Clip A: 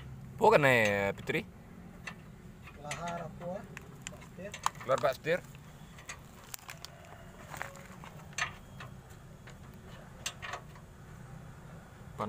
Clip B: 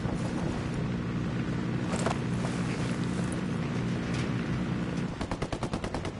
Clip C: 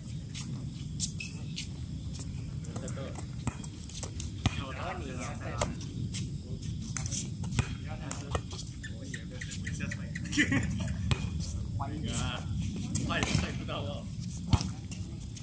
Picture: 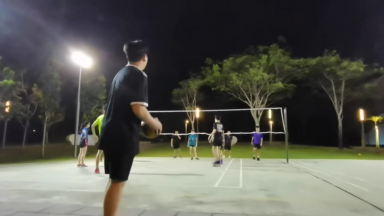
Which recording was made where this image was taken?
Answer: C